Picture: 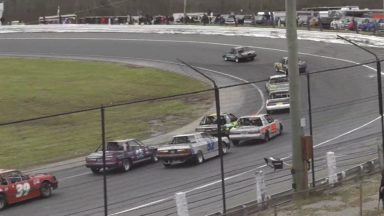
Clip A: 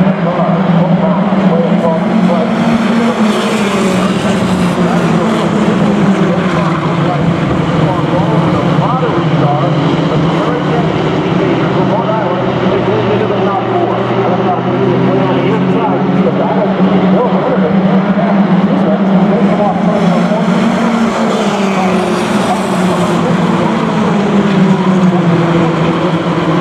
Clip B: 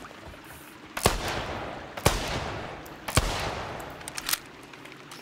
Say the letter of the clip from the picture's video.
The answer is A